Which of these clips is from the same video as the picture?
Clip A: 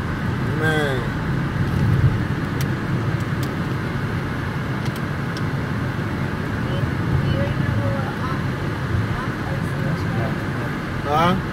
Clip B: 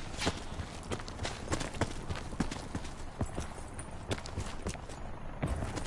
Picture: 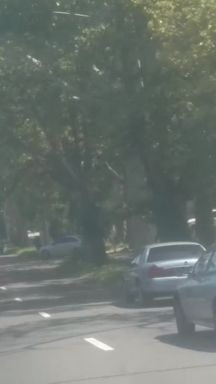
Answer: A